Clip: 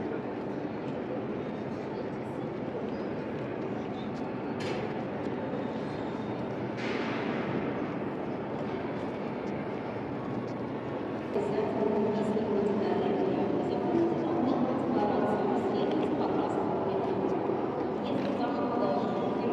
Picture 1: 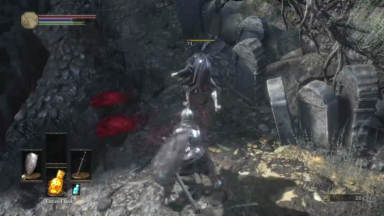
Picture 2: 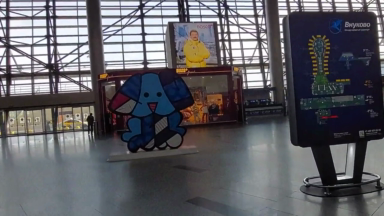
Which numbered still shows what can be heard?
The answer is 2